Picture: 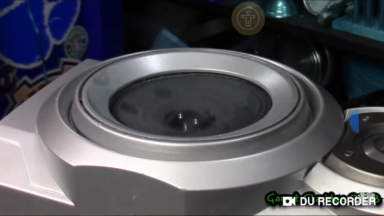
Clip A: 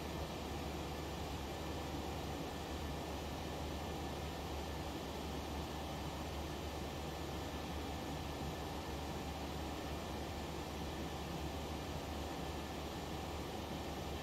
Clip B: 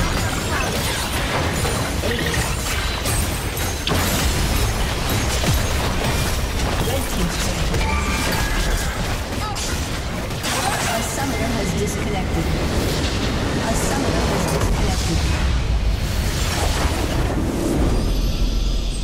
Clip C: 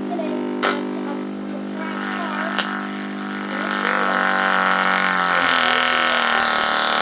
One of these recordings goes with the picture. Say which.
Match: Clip C